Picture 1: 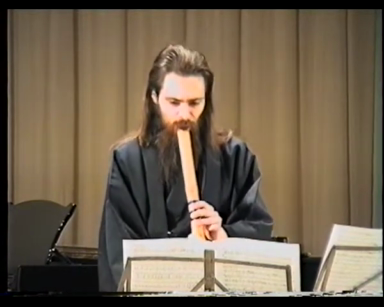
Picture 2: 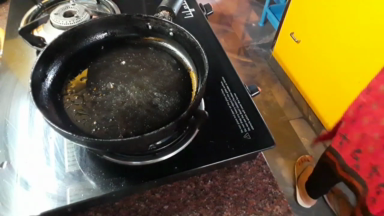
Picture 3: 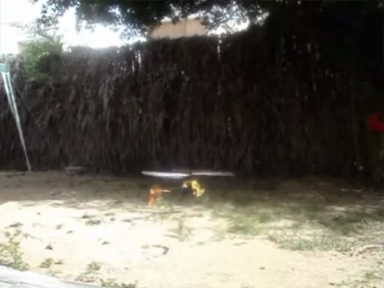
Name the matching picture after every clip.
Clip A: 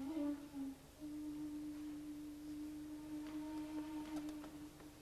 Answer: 1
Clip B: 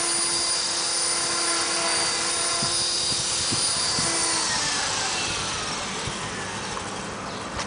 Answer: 3